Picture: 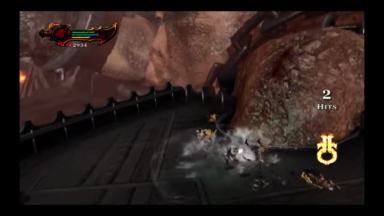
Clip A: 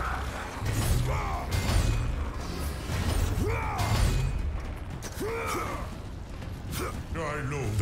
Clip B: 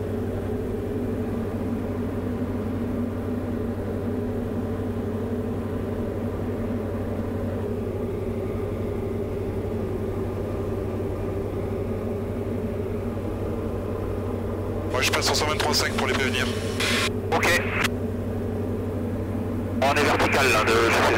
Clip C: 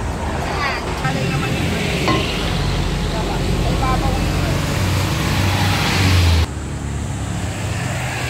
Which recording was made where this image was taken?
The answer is A